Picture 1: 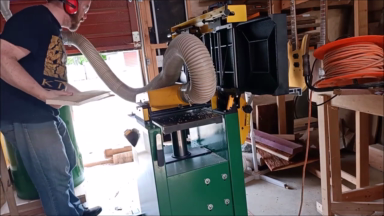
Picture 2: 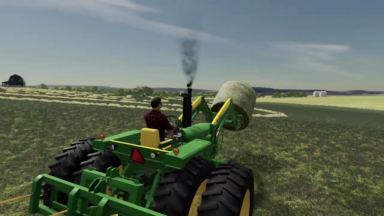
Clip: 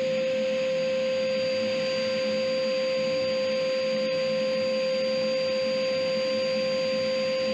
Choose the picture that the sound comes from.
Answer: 1